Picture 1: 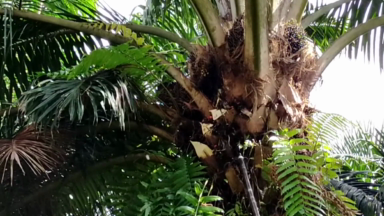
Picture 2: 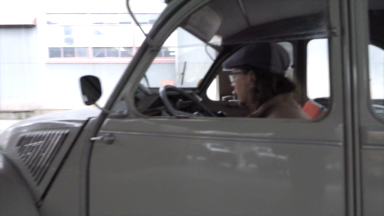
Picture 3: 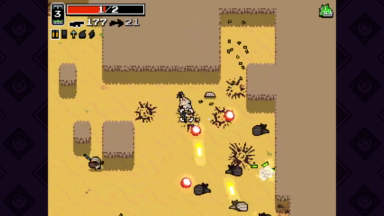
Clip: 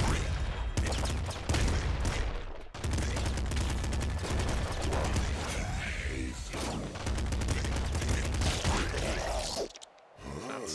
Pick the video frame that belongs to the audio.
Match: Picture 3